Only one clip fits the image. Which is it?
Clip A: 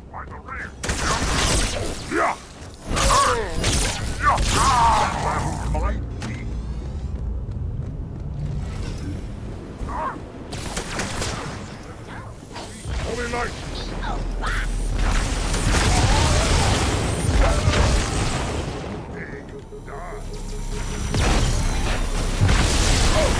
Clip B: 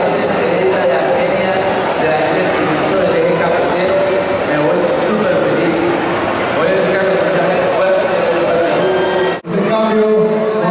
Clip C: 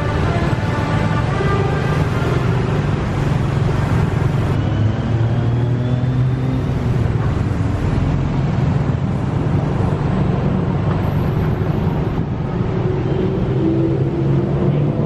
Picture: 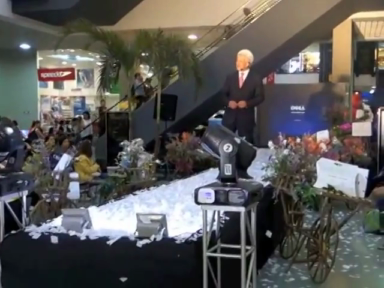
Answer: B